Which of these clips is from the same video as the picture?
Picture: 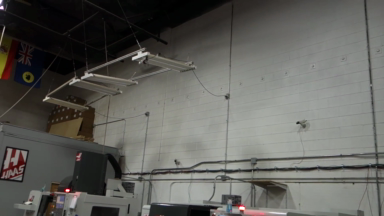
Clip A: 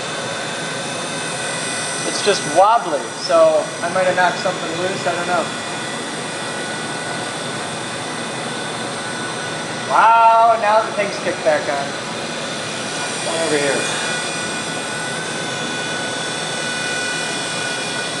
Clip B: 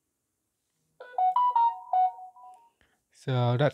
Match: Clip A